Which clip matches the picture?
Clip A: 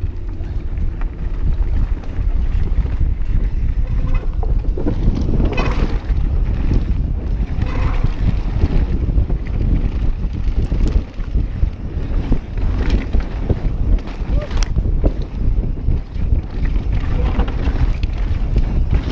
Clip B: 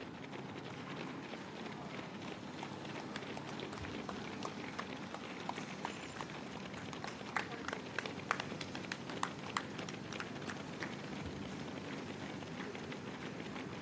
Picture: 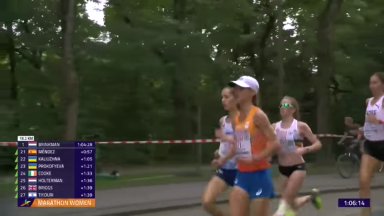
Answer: B